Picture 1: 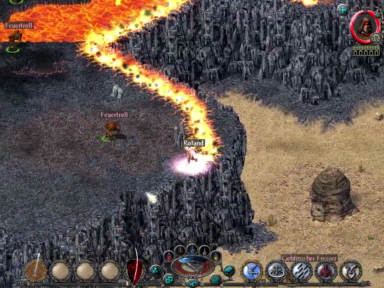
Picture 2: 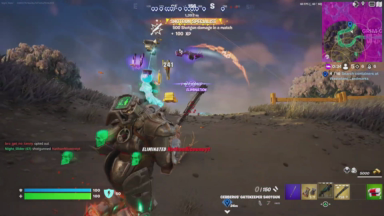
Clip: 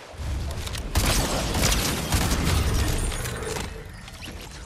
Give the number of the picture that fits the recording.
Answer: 2